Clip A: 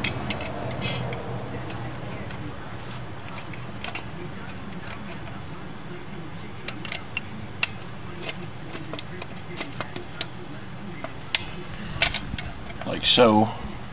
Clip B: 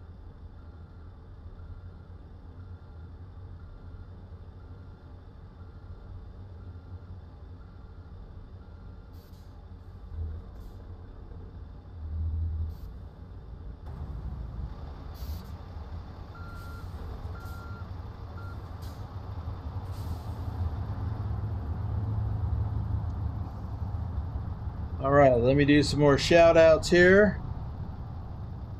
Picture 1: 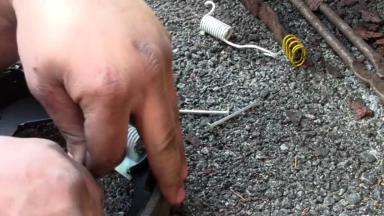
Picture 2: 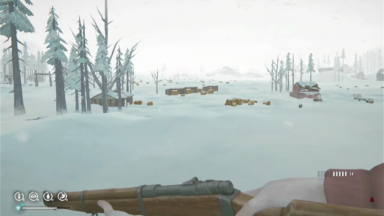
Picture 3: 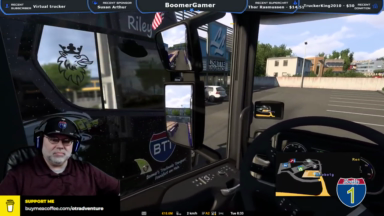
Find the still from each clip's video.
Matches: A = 1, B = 3